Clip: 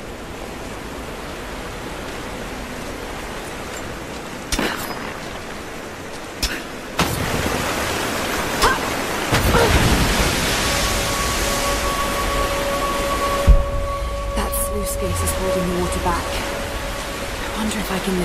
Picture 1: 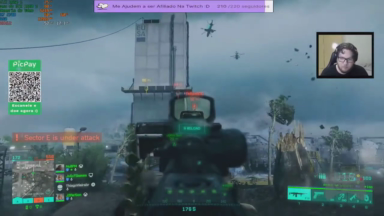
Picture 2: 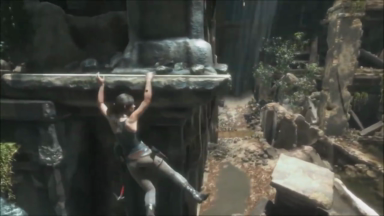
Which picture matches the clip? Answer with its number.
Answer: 2